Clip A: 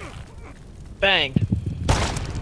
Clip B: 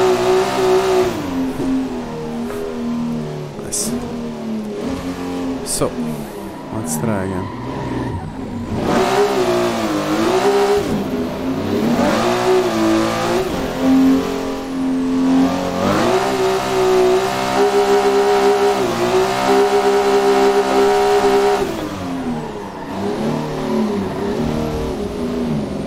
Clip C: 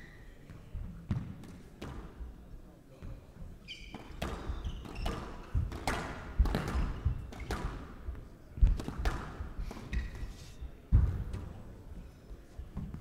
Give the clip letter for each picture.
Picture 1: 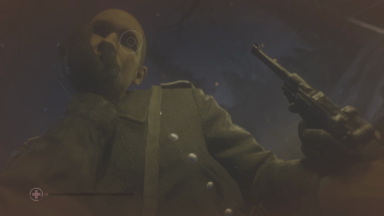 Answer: A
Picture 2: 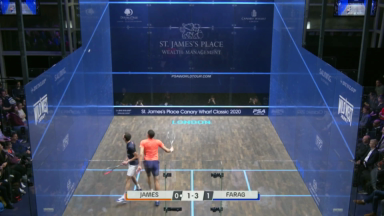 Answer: C